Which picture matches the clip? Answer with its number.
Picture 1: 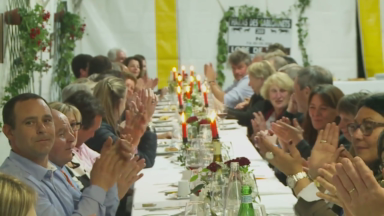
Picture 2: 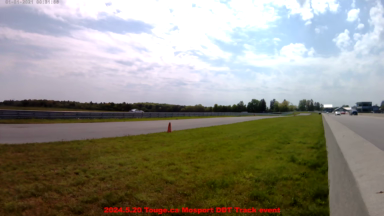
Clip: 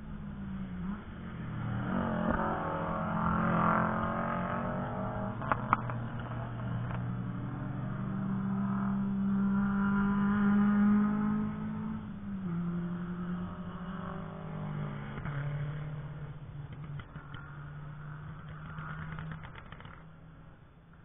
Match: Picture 2